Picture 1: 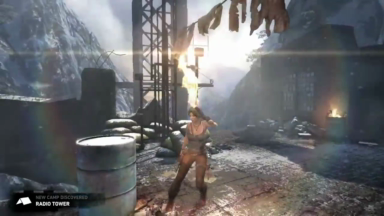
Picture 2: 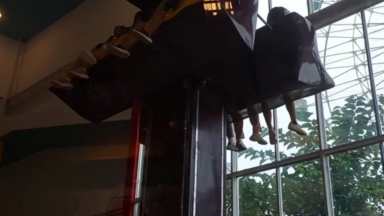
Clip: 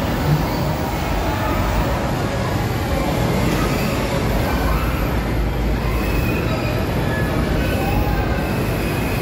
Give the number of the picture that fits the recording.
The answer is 2